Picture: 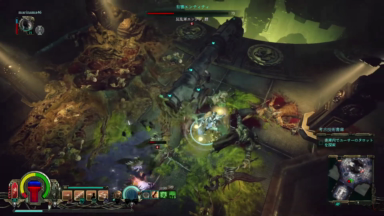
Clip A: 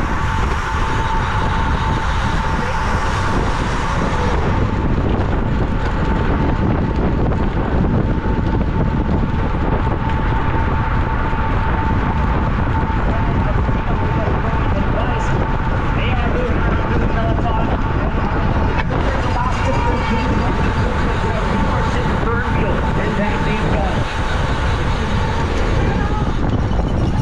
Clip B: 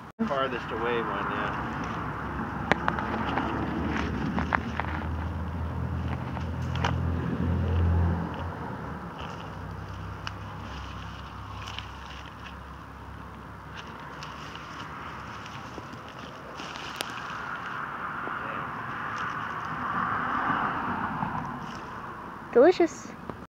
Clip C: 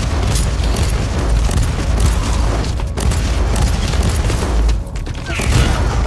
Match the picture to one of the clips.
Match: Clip C